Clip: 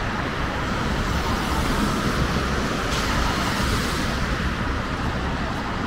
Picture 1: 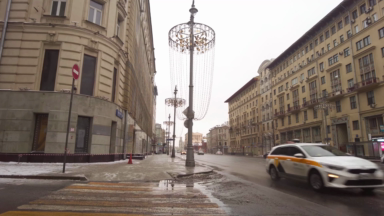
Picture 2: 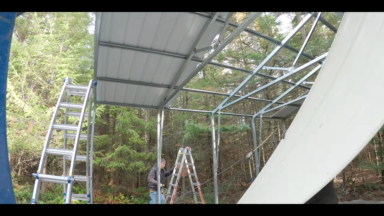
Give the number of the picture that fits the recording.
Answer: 1